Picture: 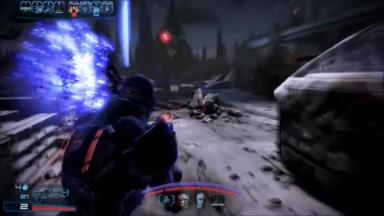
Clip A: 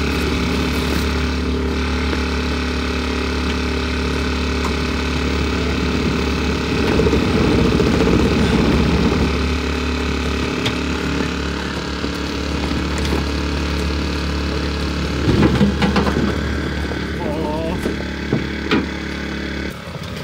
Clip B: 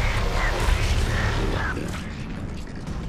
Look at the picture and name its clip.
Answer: B